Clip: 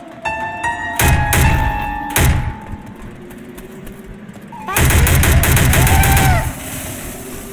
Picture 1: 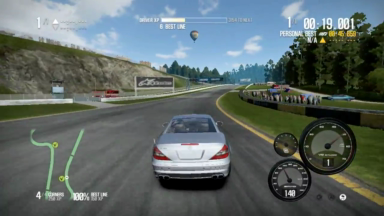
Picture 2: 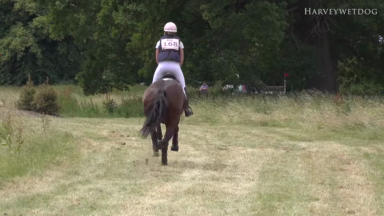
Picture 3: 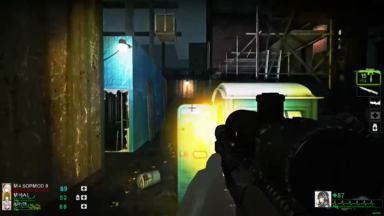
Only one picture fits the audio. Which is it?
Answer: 3